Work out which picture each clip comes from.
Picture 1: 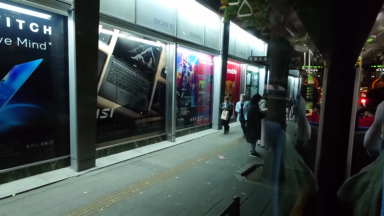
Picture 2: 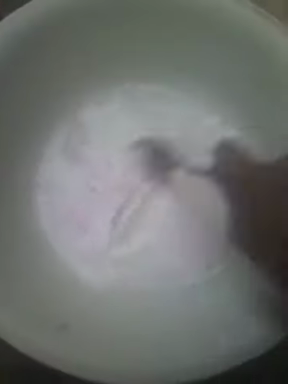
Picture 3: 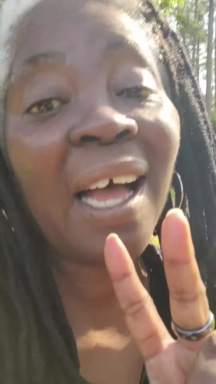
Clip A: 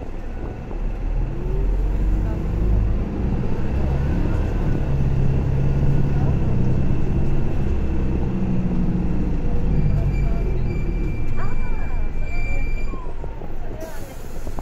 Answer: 1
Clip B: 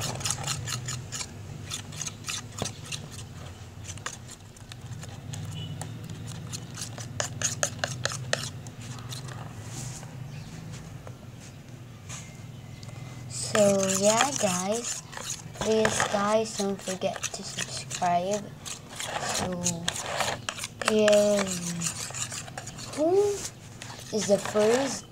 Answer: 2